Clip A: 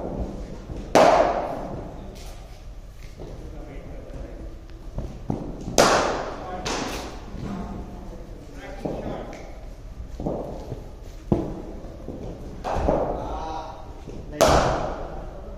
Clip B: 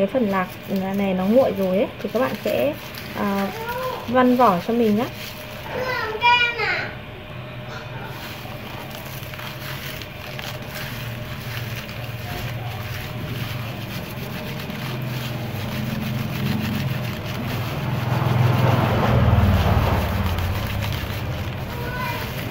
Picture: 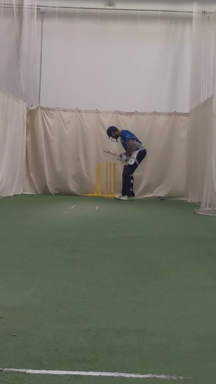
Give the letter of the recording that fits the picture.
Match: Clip A